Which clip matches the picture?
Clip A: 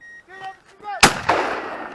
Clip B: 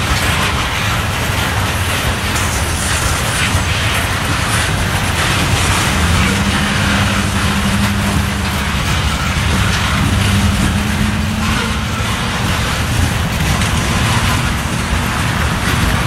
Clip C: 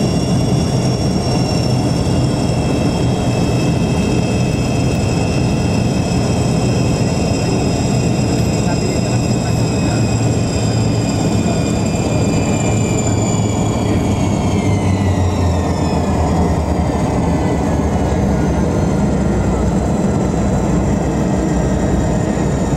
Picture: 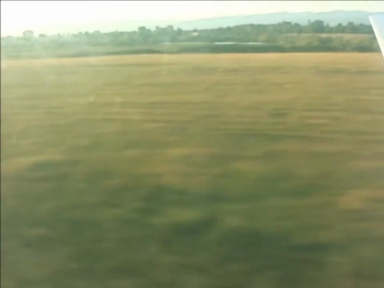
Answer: C